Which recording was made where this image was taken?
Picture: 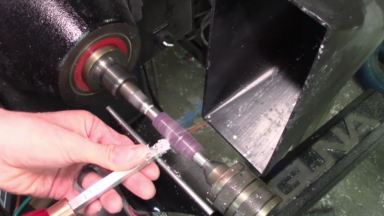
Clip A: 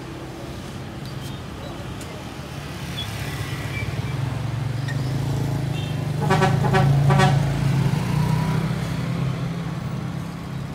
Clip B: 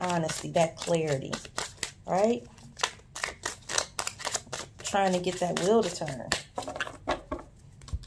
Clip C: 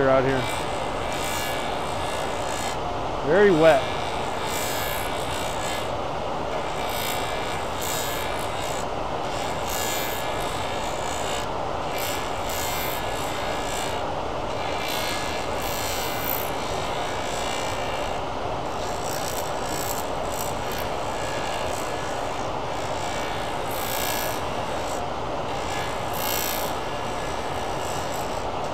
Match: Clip C